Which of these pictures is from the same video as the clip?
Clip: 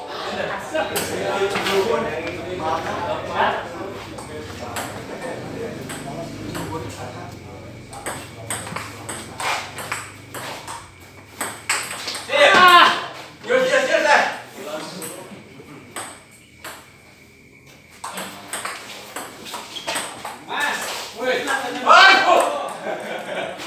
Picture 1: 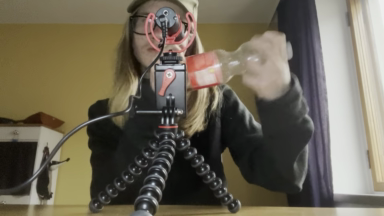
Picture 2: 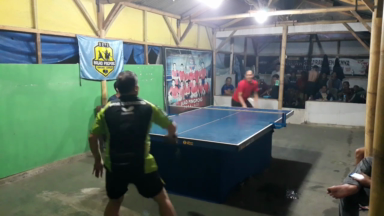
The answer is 2